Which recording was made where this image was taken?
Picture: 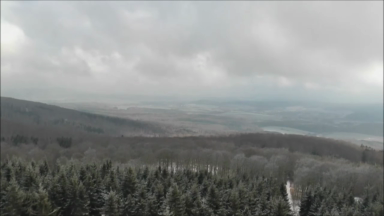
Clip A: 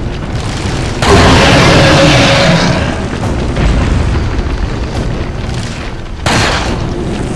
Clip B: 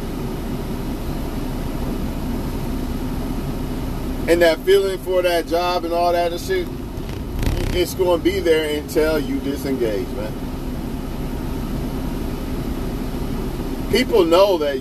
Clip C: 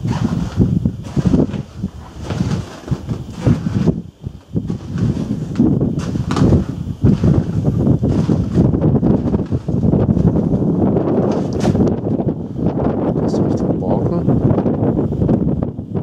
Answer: C